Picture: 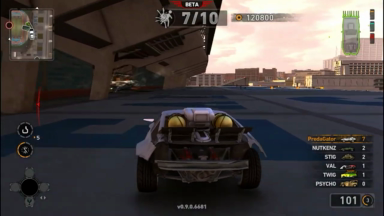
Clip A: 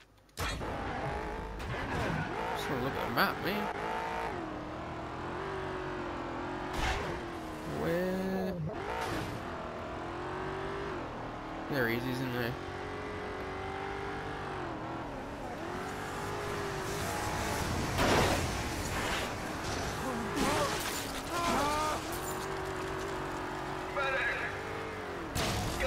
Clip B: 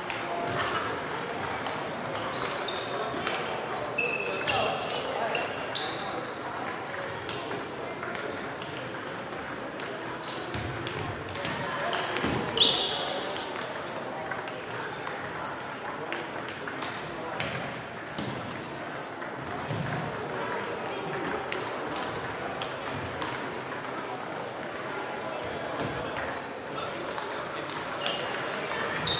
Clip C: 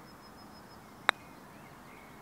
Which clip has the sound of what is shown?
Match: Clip A